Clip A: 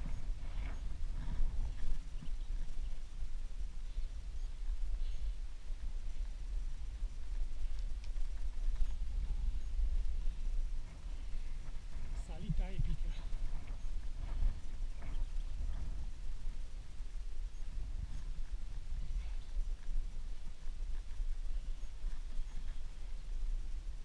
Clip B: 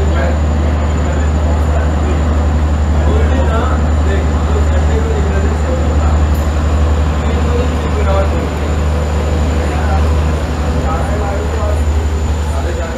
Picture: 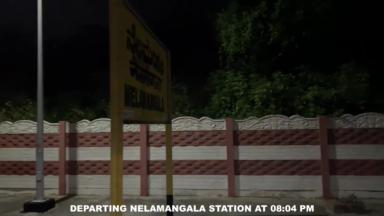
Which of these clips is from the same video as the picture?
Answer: B